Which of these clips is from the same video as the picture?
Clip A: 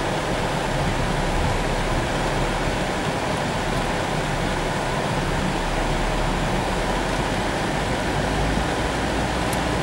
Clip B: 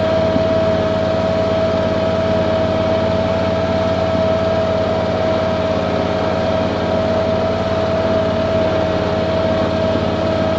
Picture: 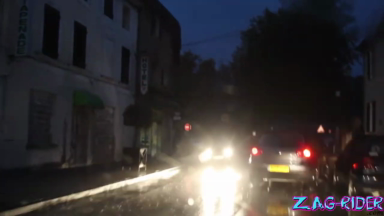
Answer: A